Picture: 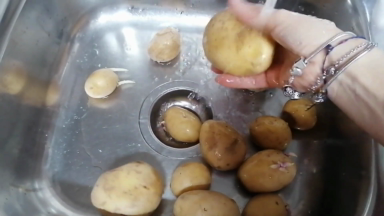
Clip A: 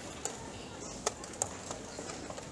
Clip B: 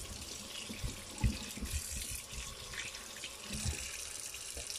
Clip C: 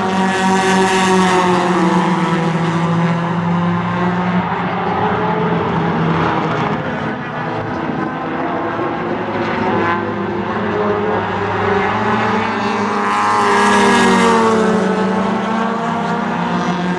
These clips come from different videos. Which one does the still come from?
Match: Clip B